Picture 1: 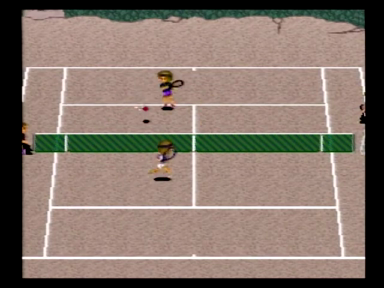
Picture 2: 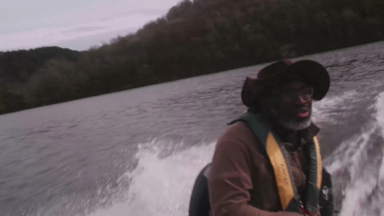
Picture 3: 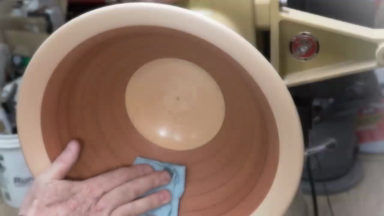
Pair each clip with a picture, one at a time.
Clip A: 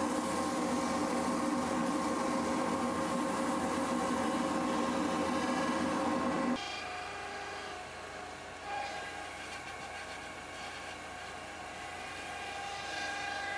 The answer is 3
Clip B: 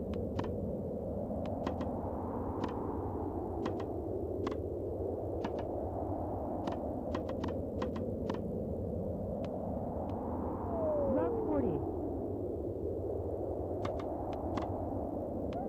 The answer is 1